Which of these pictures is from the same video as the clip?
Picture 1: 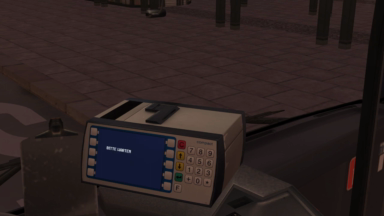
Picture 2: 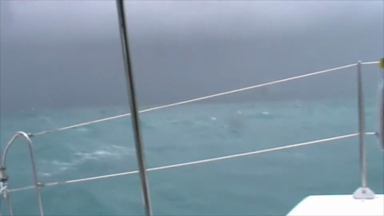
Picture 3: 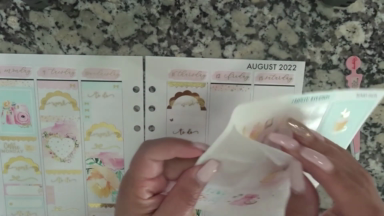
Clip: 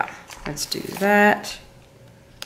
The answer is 3